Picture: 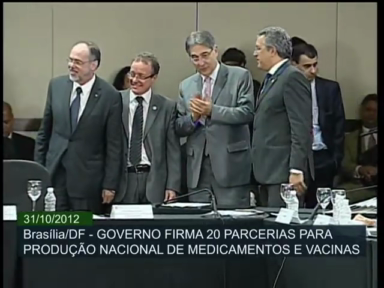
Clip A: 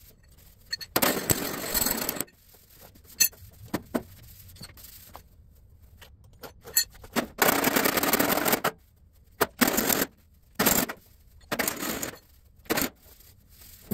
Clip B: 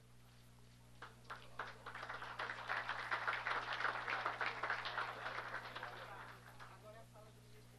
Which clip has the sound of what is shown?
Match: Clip B